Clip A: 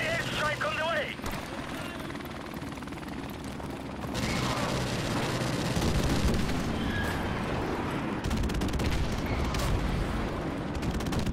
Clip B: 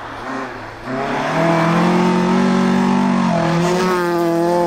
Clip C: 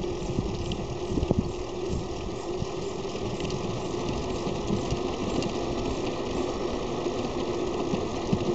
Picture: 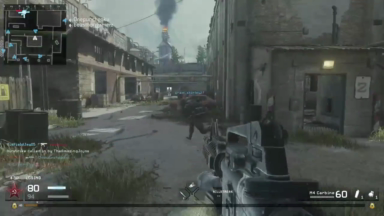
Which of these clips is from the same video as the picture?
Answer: A